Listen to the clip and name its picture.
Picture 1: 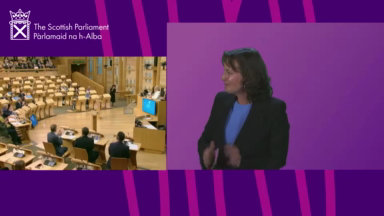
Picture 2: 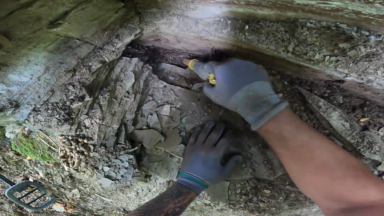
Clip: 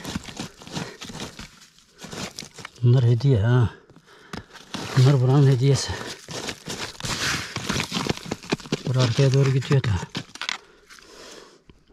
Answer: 2